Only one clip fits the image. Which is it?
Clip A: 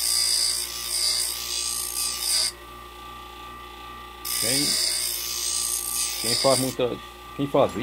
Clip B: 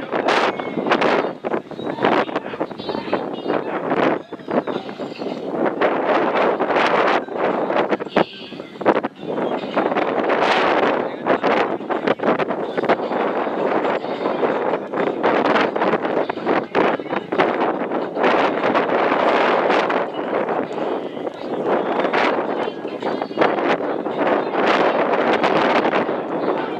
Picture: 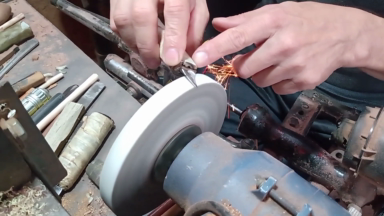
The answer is A